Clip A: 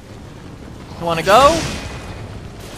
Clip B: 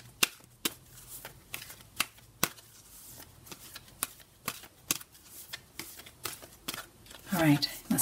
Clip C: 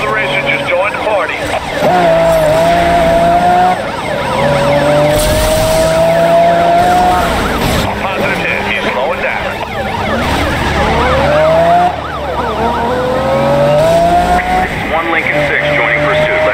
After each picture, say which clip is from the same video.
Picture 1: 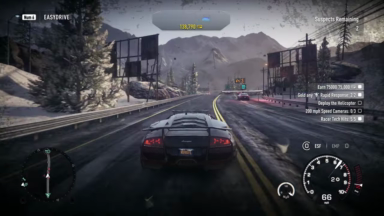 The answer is C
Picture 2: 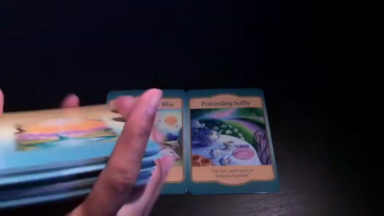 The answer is B